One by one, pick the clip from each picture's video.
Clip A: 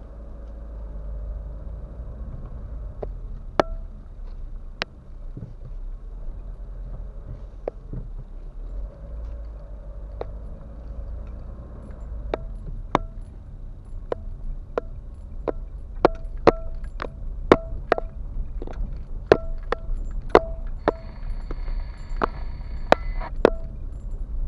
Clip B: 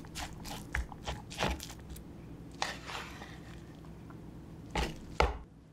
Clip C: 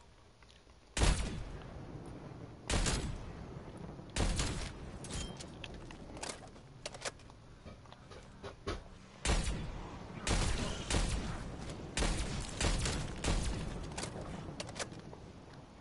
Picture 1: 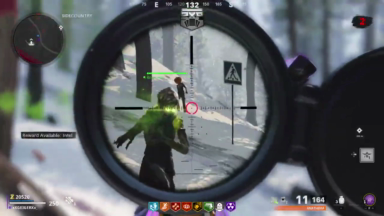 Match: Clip C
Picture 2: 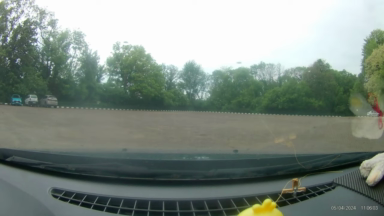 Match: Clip A